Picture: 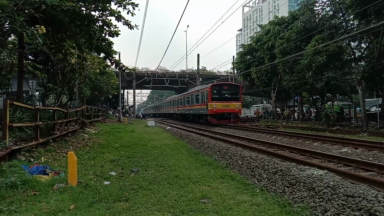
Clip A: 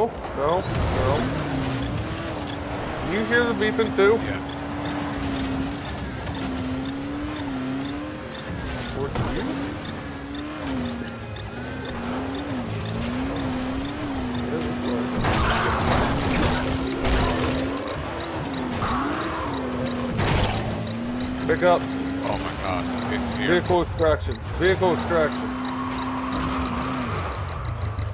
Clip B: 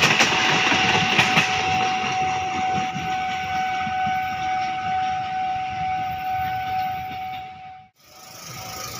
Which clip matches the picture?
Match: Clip B